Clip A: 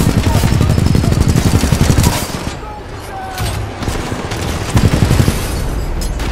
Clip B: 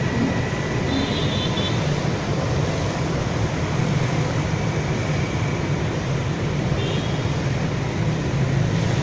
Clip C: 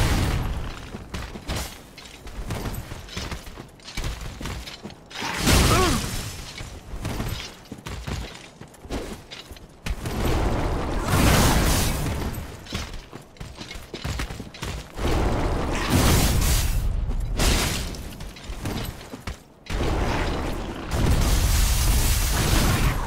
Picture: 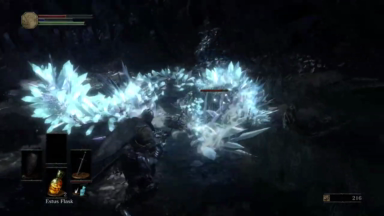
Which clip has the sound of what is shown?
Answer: C